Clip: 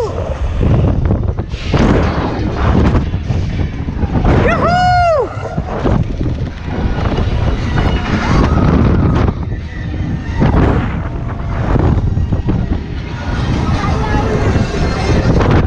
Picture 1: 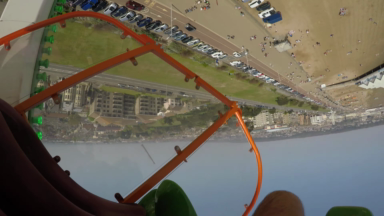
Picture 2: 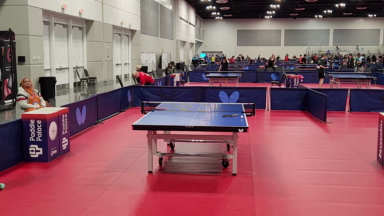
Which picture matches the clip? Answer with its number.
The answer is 1